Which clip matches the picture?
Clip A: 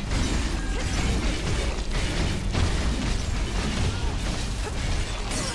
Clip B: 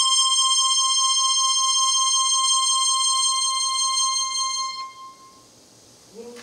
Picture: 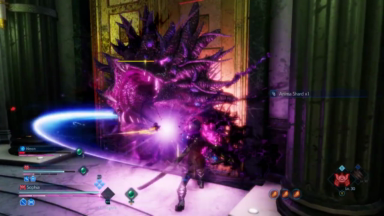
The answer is A